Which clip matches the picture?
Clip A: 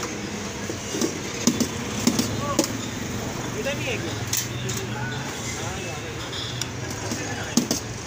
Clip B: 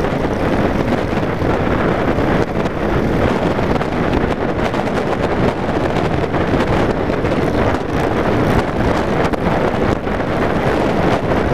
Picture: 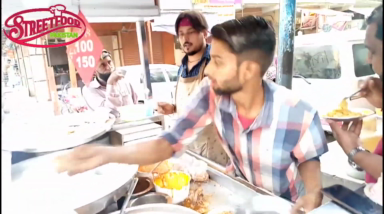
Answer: A